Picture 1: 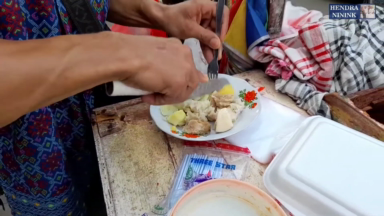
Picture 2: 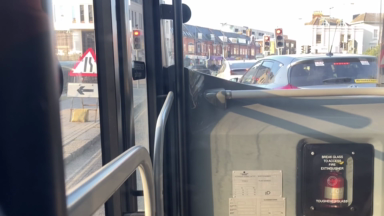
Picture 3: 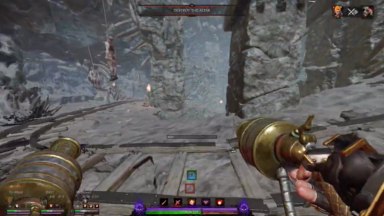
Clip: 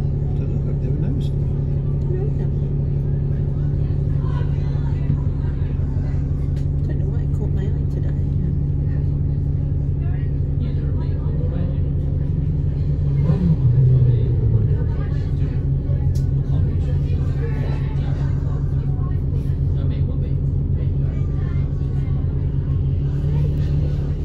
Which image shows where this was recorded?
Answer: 2